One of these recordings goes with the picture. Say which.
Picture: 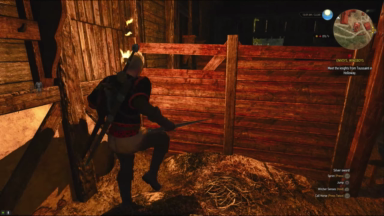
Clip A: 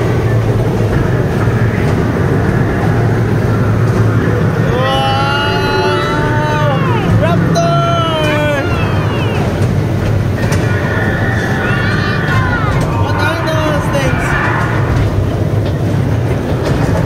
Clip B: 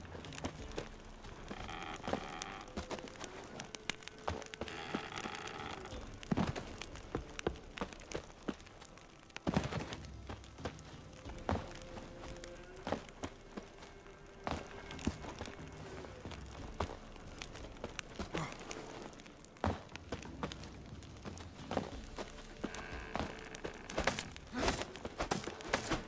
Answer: B